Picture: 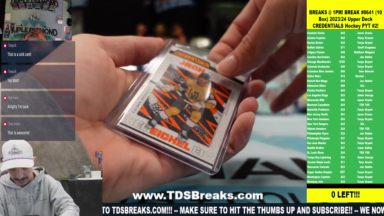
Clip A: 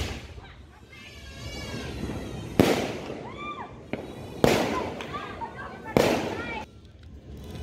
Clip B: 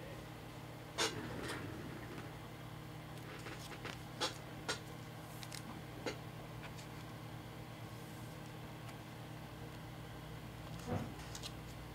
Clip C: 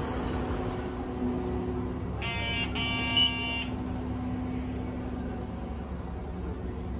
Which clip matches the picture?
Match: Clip B